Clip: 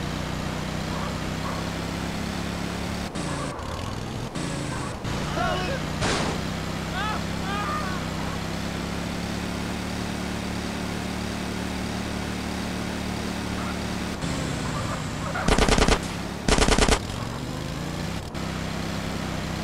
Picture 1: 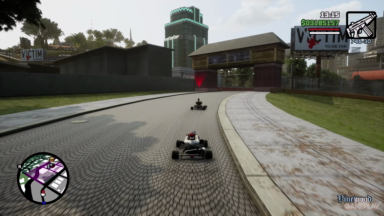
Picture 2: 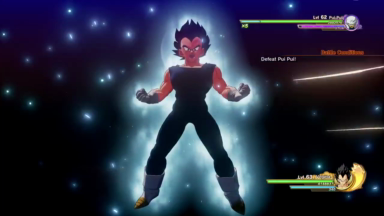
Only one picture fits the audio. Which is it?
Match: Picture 1